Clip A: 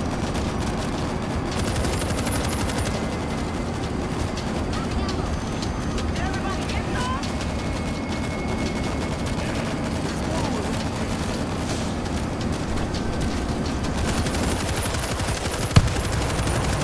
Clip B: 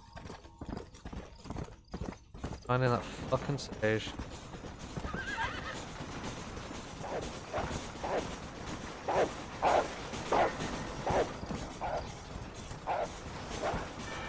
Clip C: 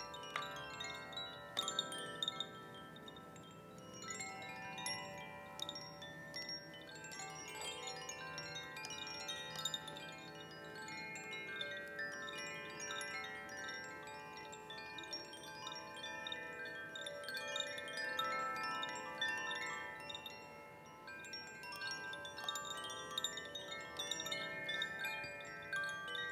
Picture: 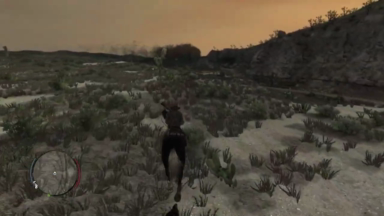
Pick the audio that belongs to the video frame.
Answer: B